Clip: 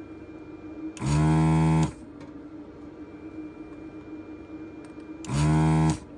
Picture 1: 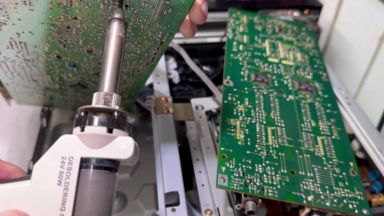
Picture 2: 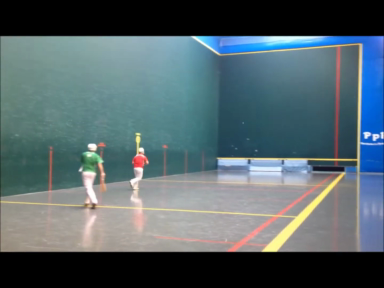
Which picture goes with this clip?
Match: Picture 1